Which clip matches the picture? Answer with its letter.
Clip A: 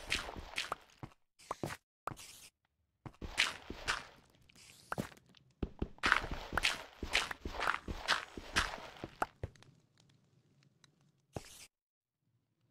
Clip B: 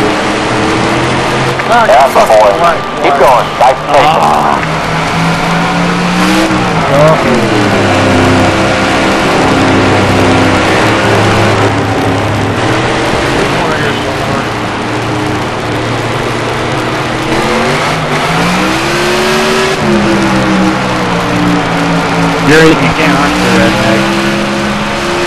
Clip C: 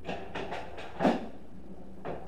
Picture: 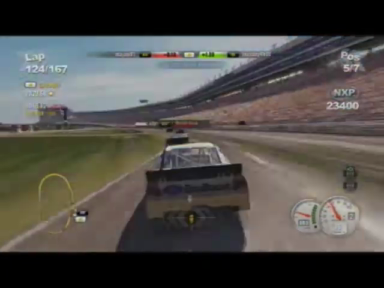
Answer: B